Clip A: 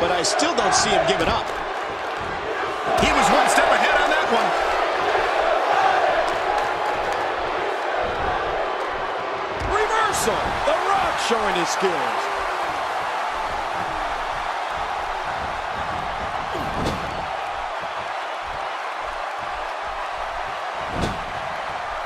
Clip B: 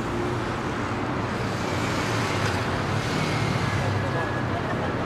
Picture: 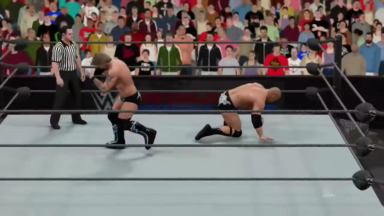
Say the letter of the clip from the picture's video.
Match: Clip A